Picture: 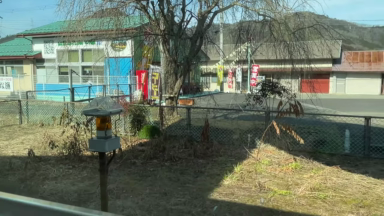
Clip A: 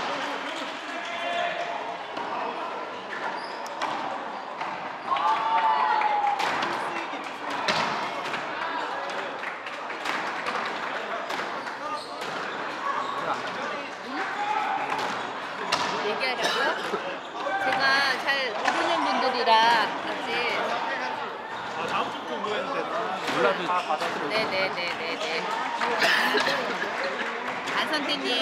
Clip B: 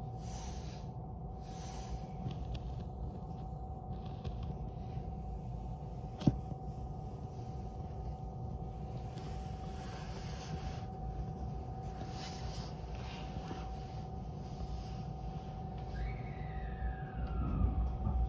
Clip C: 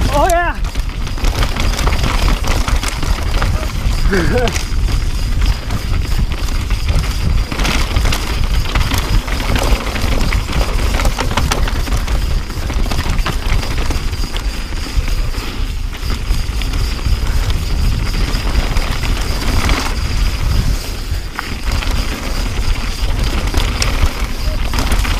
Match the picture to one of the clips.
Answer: B